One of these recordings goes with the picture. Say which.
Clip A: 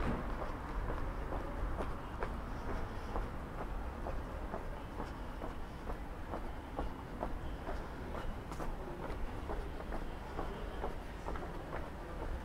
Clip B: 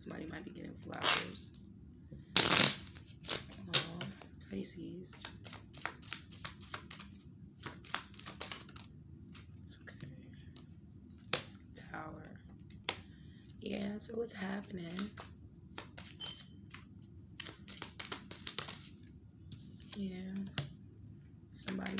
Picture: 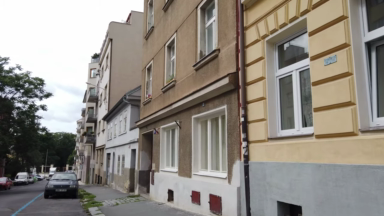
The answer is A